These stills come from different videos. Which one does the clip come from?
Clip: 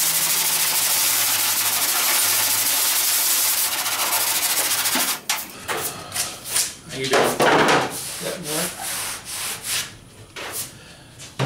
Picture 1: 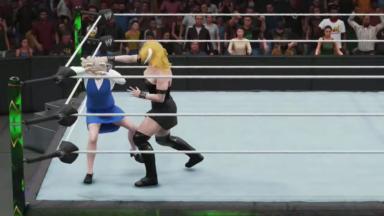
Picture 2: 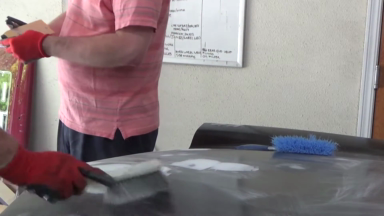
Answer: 2